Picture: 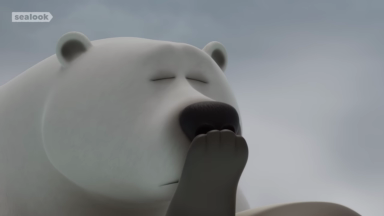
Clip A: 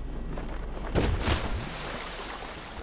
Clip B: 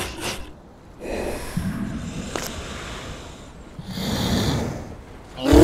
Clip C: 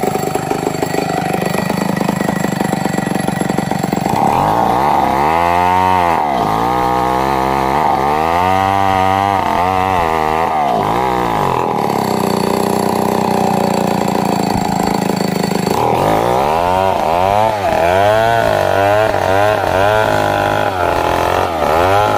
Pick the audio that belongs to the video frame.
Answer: B